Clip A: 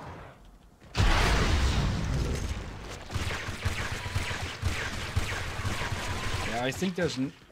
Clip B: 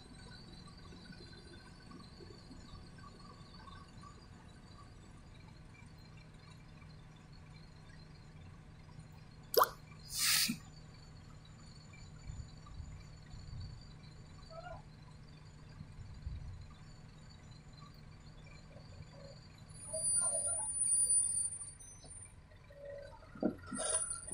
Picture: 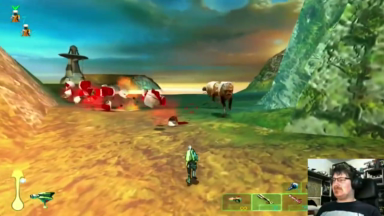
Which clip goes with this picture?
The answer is A